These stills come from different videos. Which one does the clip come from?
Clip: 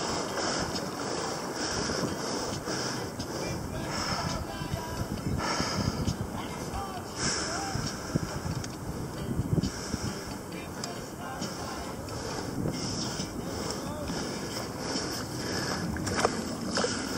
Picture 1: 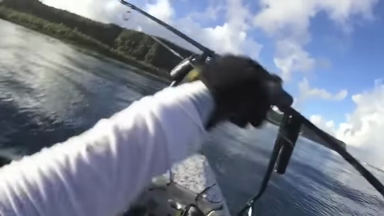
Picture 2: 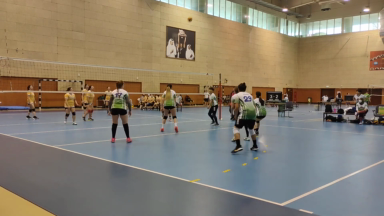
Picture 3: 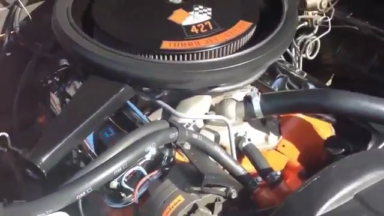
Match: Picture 1